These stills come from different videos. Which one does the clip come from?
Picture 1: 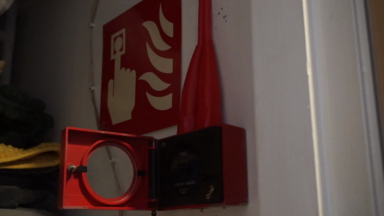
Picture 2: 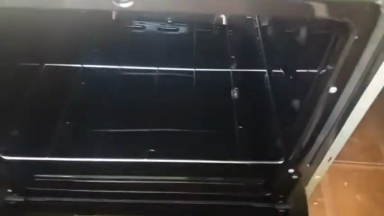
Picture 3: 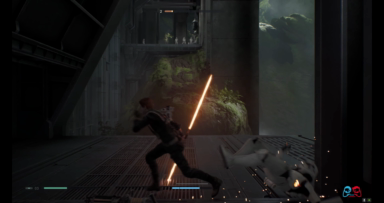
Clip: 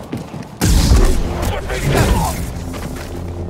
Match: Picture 3